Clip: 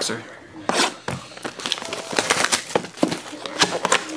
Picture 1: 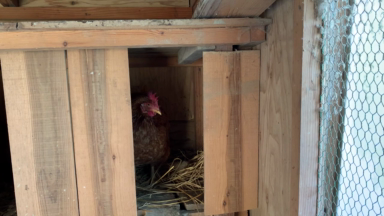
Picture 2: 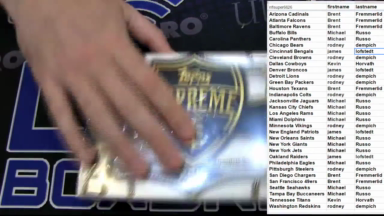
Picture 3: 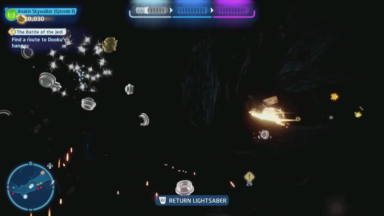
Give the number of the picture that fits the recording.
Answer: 2